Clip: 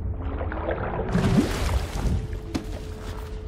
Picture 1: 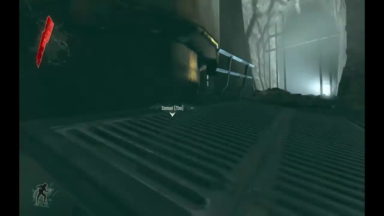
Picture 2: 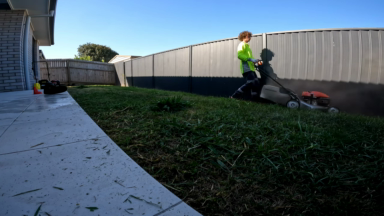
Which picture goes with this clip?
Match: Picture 1